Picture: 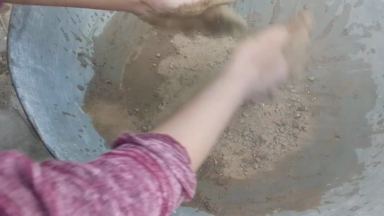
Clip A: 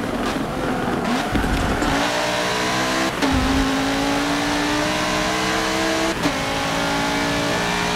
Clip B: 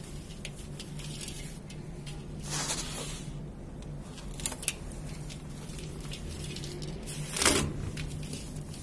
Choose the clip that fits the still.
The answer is B